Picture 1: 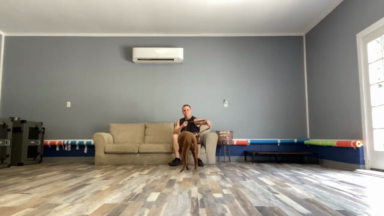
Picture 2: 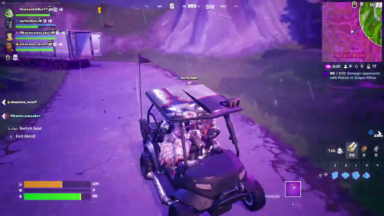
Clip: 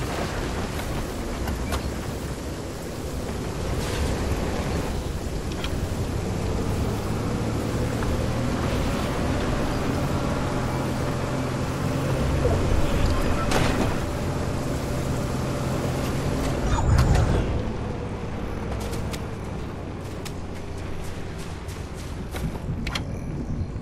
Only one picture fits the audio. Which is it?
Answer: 2